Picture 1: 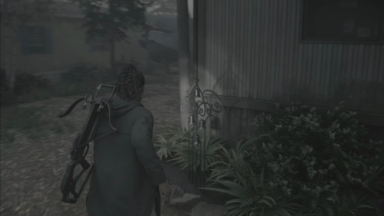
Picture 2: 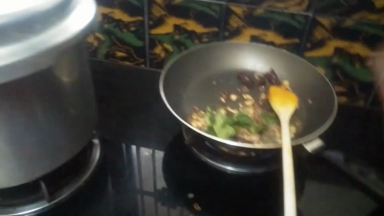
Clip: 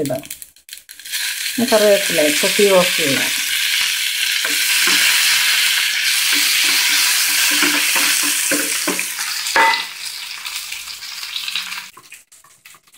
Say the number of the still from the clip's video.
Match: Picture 2